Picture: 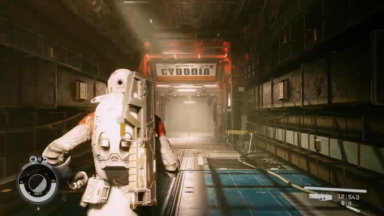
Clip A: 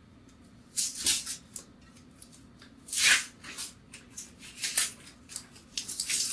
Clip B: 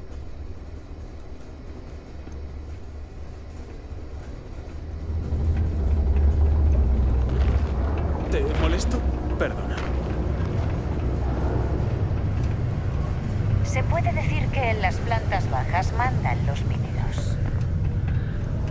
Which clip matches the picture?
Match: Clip B